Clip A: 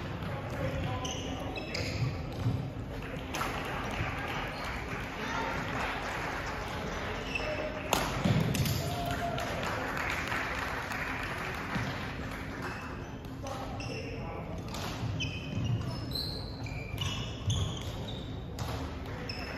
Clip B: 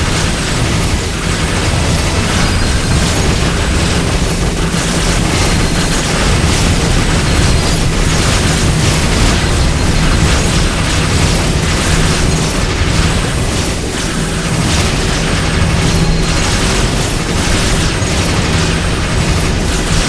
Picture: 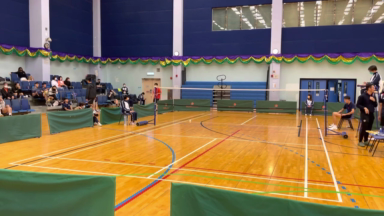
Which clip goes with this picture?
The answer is A